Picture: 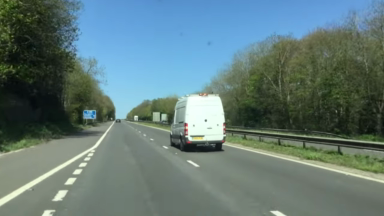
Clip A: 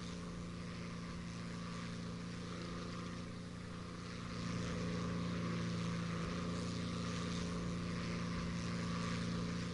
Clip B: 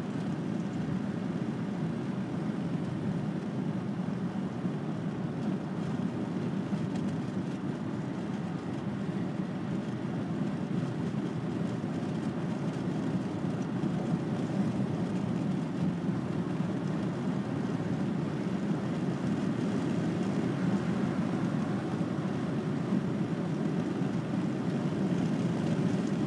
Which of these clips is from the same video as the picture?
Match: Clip B